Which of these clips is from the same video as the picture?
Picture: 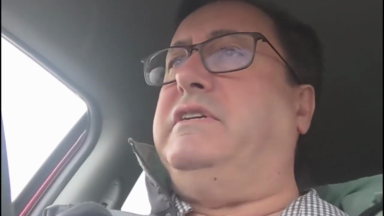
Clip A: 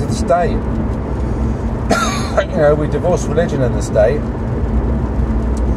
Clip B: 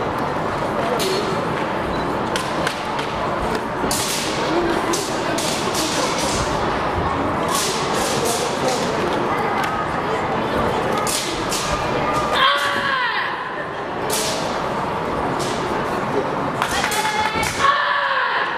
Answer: A